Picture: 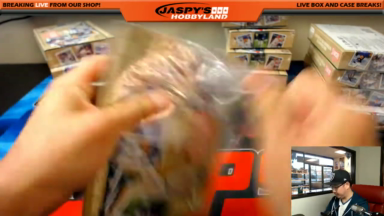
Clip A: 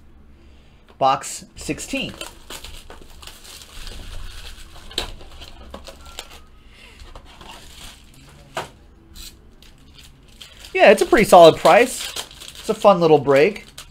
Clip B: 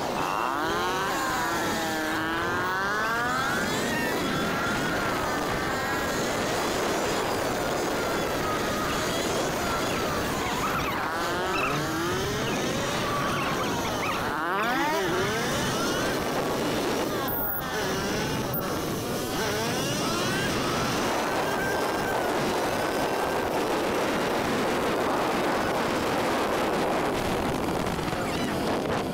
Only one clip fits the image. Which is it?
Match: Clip A